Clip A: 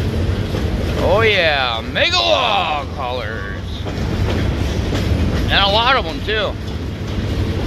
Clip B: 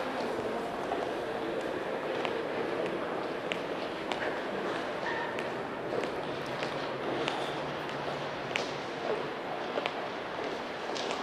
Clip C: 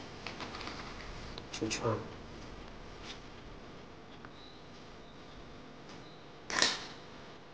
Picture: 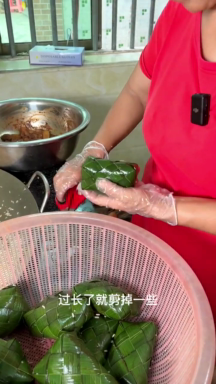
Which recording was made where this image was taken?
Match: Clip C